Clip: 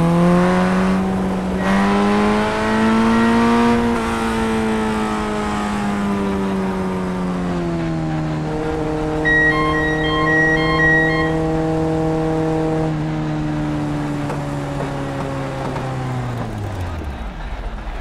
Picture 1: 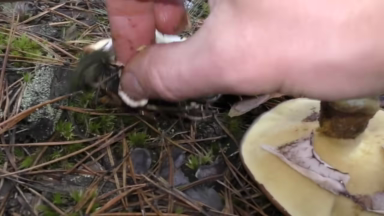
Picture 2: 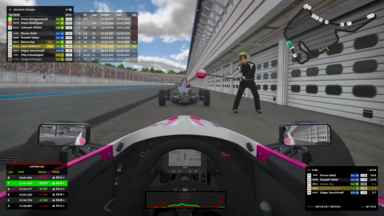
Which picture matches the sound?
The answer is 2